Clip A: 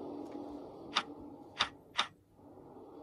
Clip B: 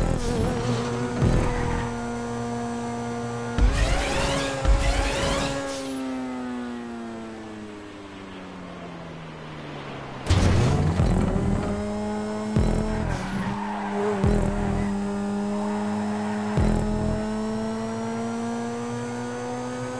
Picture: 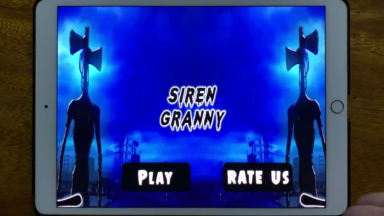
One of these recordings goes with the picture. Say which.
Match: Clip A